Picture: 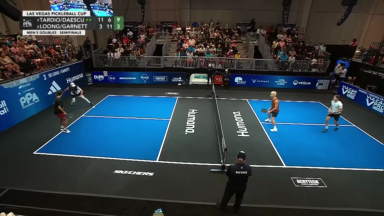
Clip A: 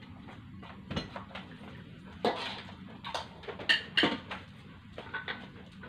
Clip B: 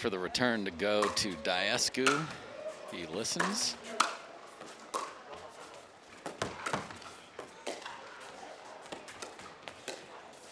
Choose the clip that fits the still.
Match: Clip B